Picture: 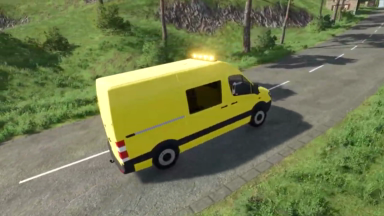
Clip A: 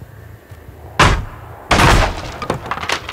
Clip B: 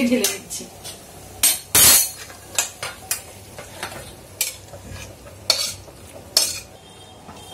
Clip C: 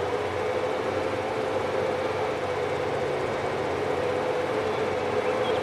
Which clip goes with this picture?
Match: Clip C